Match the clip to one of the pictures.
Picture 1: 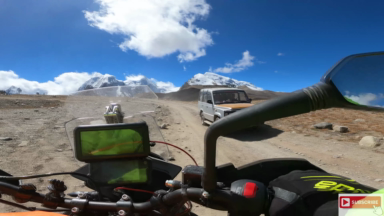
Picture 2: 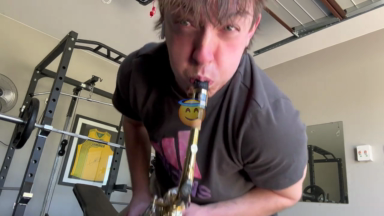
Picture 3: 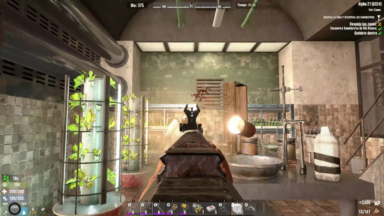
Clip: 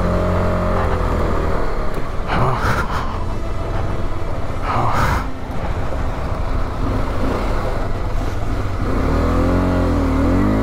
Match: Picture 1